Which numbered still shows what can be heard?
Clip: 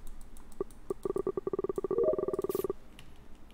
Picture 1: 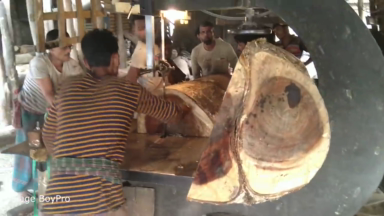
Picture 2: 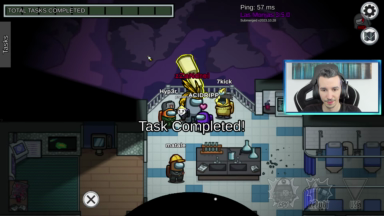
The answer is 2